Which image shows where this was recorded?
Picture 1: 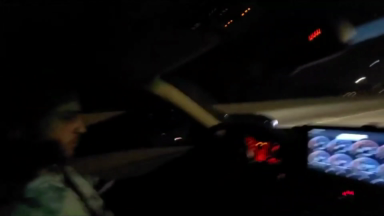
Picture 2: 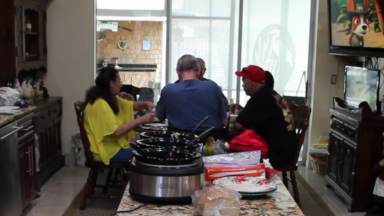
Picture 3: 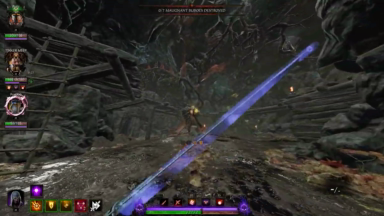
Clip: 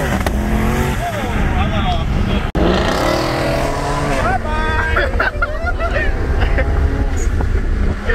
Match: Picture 1